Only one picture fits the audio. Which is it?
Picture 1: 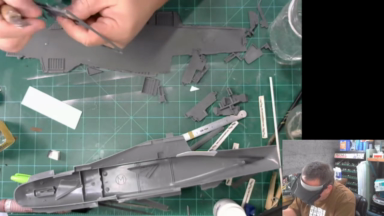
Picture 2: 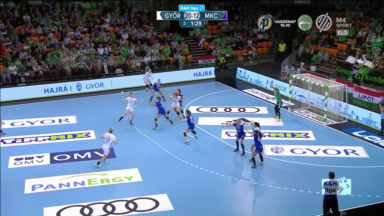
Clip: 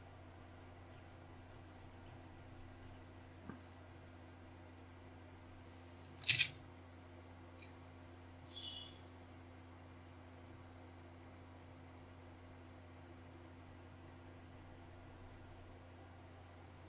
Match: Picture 1